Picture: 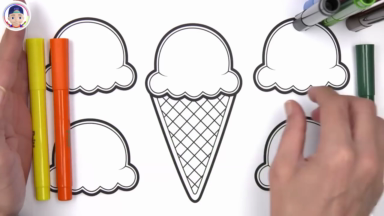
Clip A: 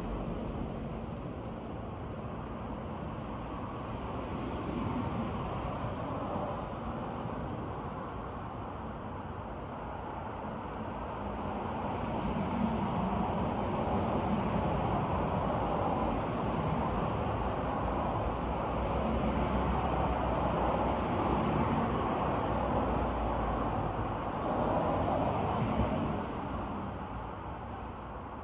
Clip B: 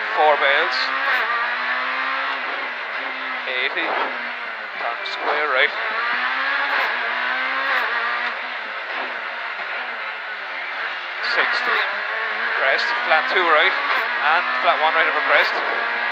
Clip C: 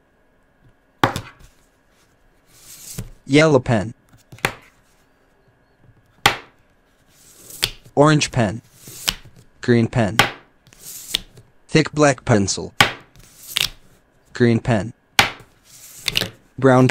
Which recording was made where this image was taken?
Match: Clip C